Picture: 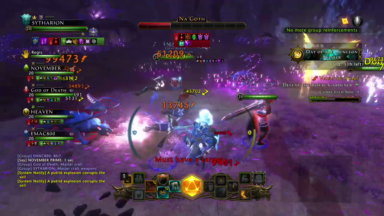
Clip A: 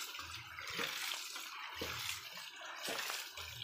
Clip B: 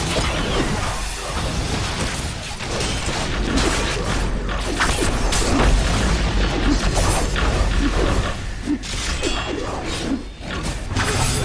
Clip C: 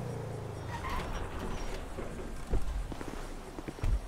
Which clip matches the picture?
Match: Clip B